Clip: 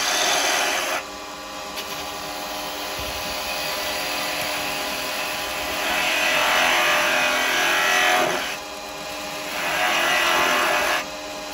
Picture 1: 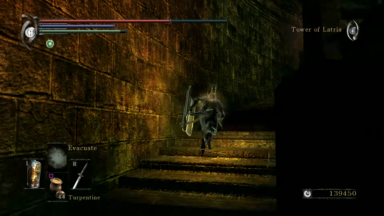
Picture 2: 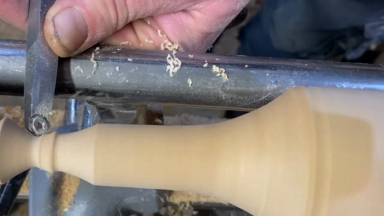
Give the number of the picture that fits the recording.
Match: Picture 2